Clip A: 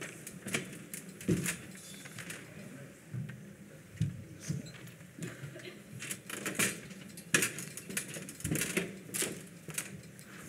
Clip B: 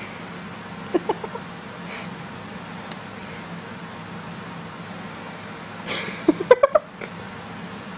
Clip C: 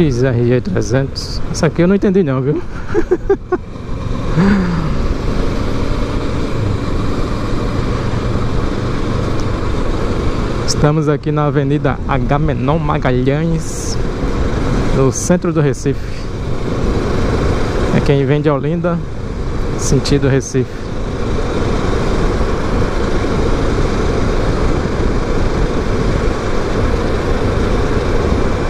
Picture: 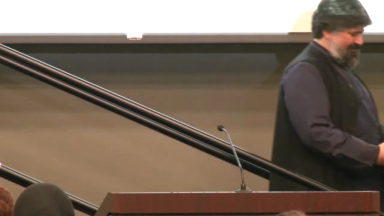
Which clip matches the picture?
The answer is A